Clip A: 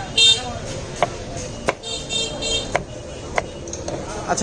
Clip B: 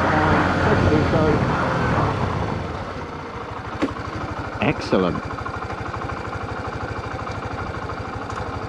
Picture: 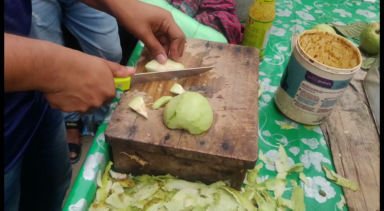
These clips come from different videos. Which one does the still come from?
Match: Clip A